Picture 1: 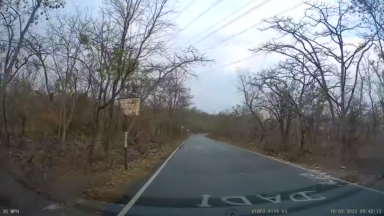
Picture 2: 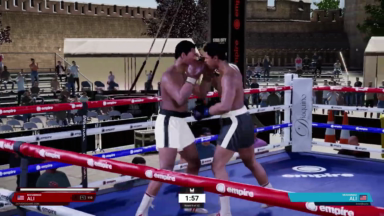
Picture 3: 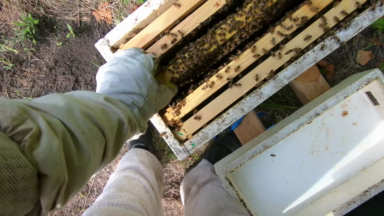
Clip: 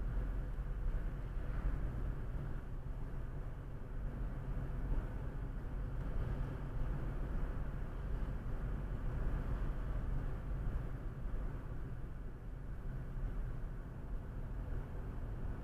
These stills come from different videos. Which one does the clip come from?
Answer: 1